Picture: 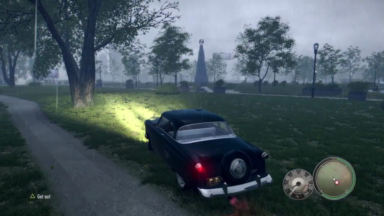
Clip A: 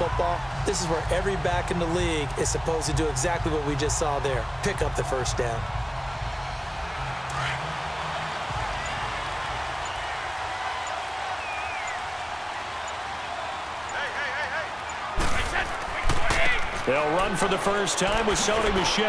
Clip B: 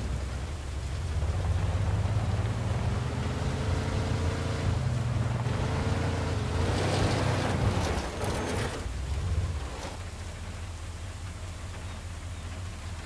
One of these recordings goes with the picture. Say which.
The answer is B